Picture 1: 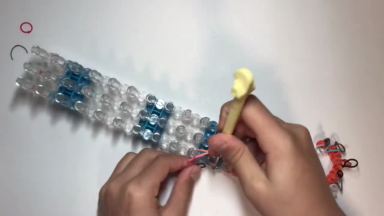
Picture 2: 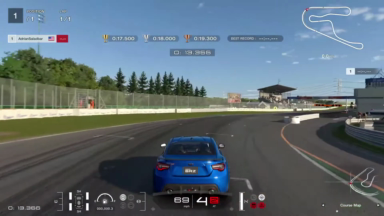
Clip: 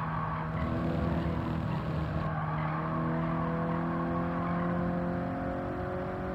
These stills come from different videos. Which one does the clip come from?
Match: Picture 2